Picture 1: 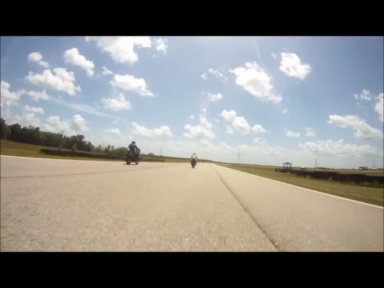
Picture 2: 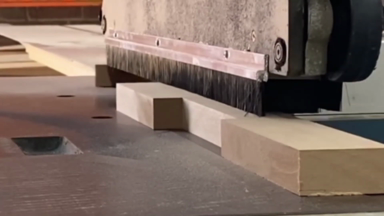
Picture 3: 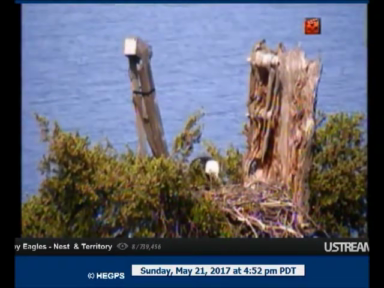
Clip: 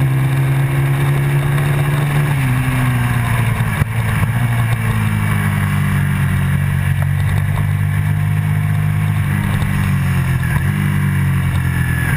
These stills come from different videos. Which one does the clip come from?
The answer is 1